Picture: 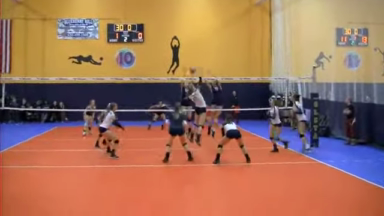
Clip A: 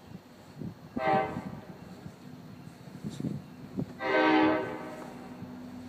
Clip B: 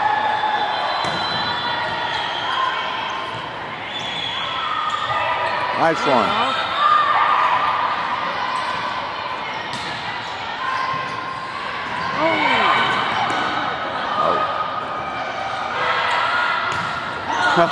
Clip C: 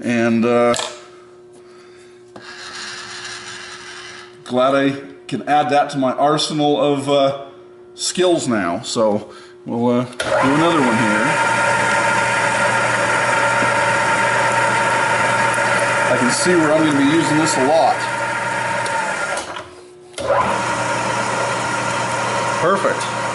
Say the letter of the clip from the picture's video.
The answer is B